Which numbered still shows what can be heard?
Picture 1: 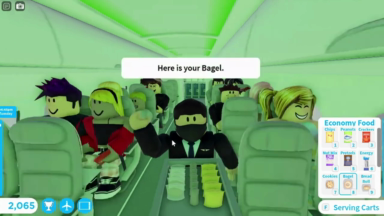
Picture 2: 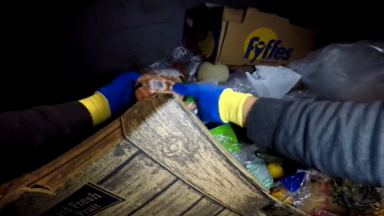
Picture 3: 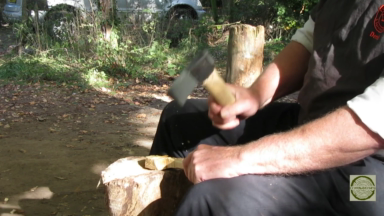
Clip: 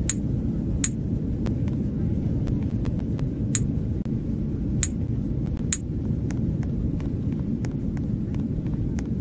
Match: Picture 1